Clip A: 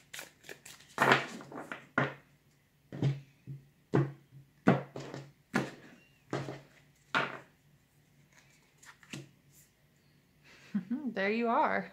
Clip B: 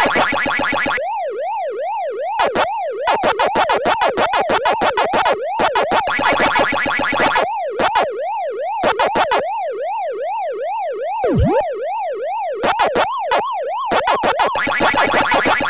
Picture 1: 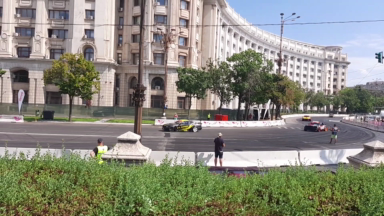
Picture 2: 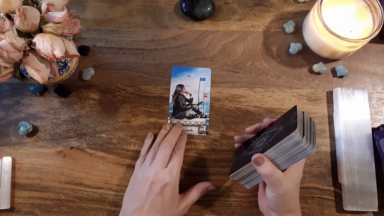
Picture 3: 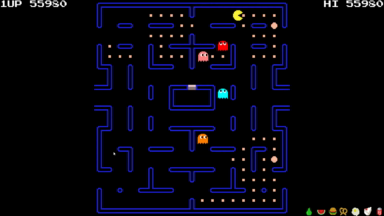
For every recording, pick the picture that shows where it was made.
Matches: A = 2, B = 3